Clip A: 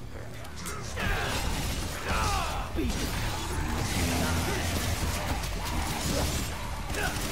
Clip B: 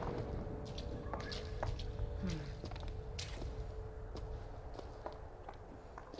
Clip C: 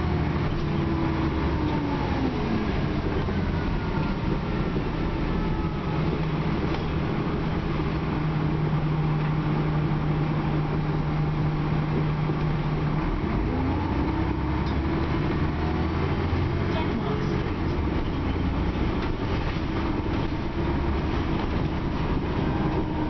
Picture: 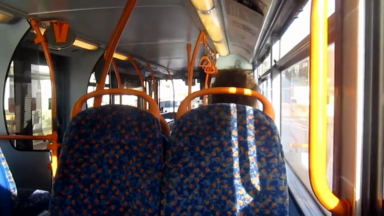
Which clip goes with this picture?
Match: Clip C